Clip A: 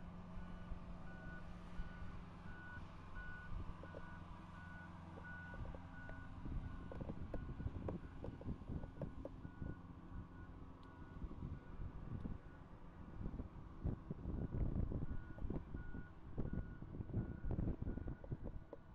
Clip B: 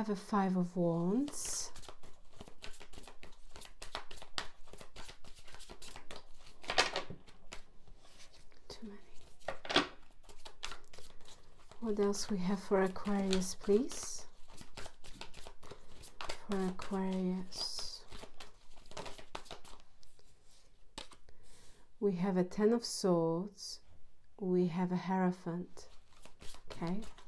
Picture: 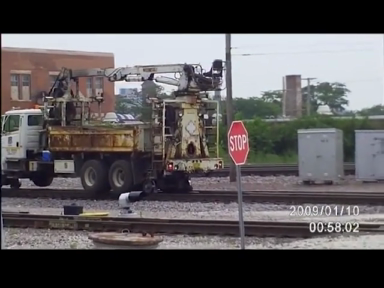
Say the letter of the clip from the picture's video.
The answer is A